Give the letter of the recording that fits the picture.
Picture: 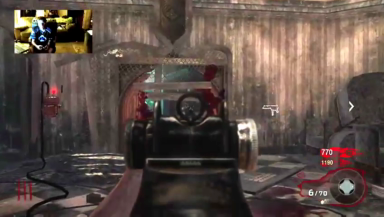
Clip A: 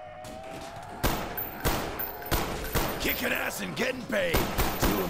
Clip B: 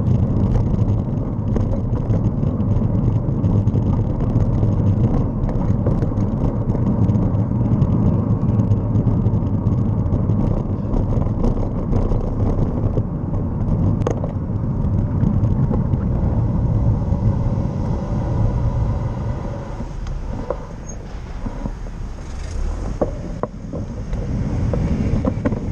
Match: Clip A